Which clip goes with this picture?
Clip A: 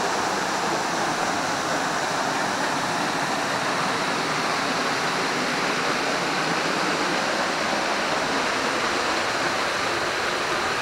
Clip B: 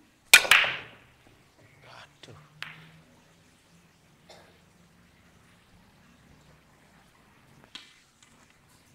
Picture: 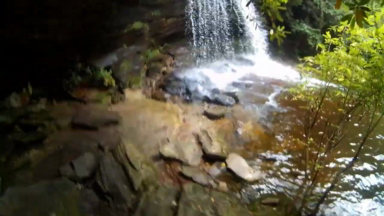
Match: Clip A